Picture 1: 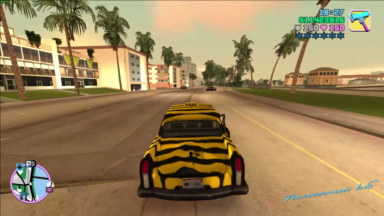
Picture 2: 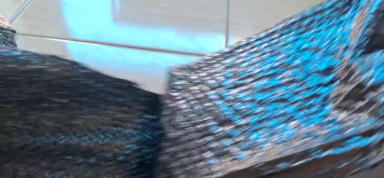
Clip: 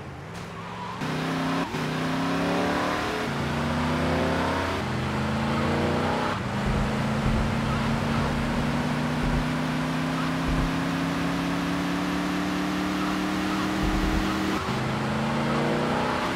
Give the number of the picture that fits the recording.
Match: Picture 1